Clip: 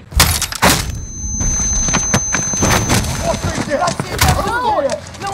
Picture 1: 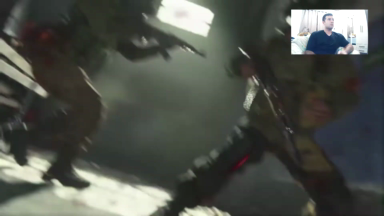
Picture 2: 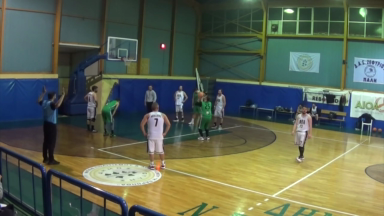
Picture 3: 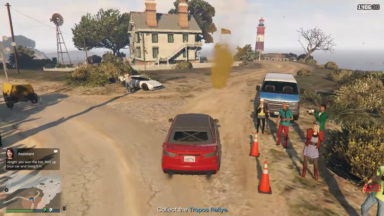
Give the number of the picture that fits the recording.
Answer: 1